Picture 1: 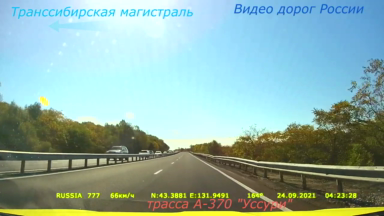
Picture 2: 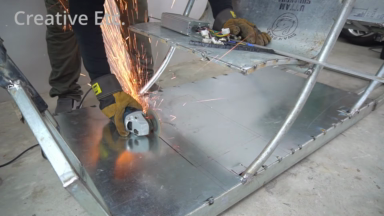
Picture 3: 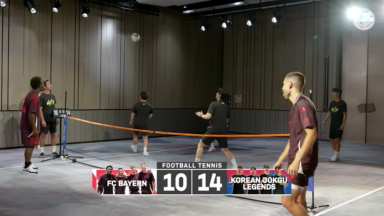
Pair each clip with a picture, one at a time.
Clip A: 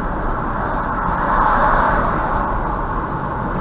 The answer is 1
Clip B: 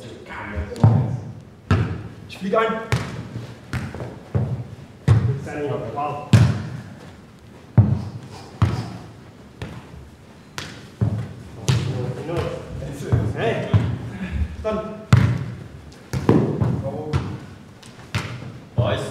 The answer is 3